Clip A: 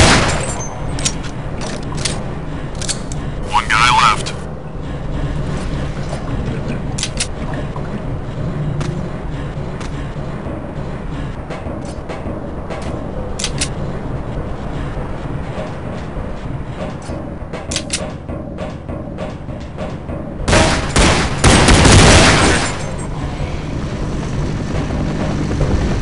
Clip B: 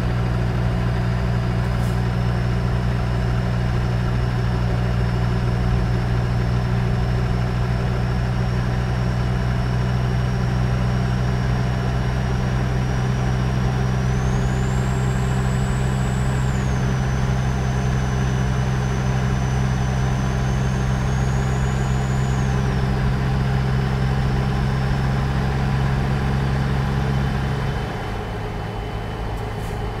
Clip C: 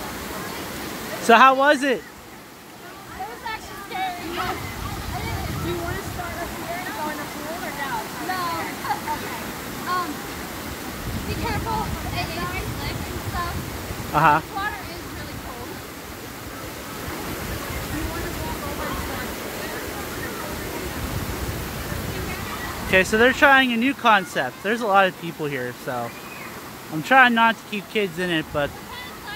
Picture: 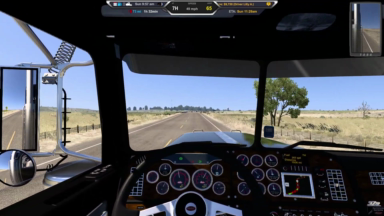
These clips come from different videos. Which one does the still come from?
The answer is B